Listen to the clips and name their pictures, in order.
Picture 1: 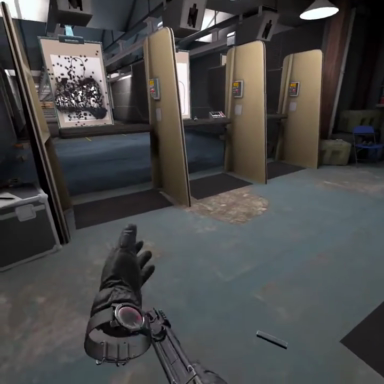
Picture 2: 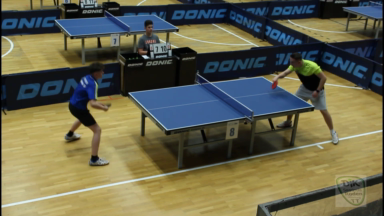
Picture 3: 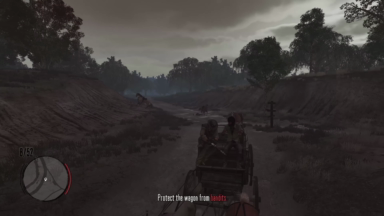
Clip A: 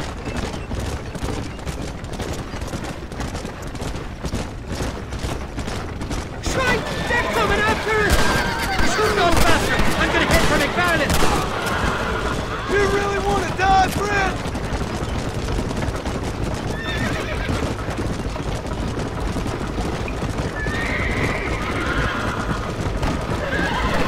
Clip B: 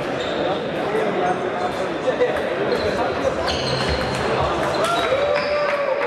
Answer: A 3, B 2